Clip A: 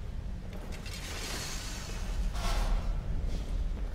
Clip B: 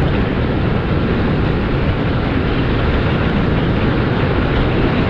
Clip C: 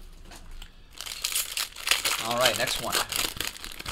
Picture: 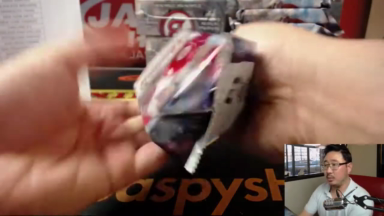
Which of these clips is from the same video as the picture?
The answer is C